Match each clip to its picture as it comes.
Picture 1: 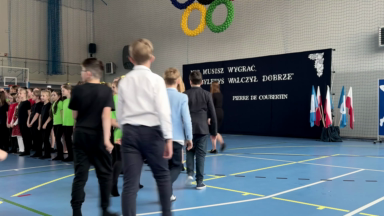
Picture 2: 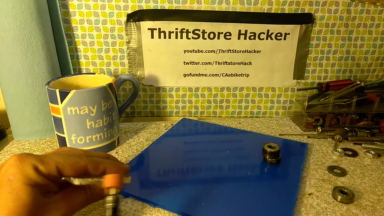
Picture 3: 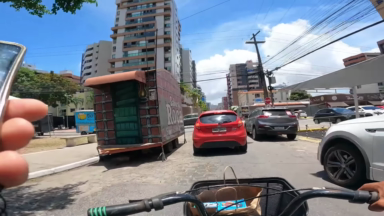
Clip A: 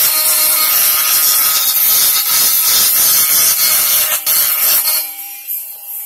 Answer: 2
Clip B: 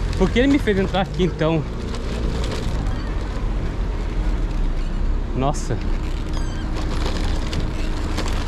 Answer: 3